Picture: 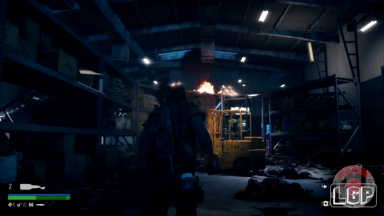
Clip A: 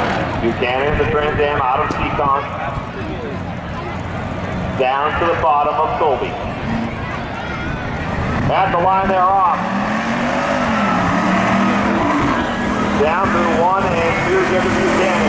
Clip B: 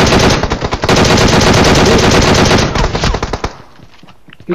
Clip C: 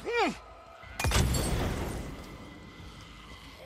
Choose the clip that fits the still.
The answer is C